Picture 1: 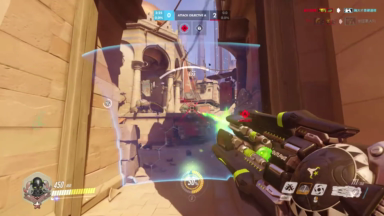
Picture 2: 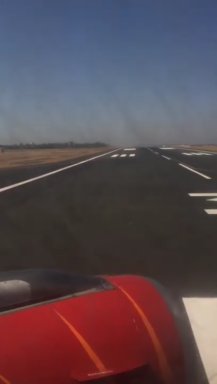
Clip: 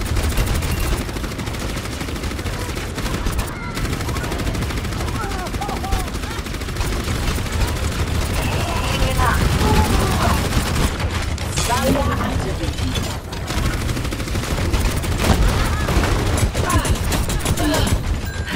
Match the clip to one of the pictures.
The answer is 1